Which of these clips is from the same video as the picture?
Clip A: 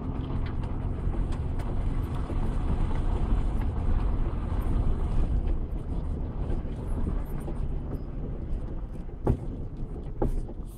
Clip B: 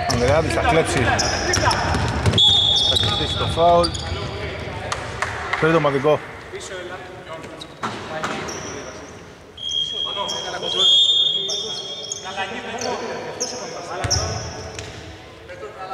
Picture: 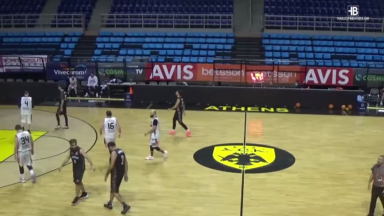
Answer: B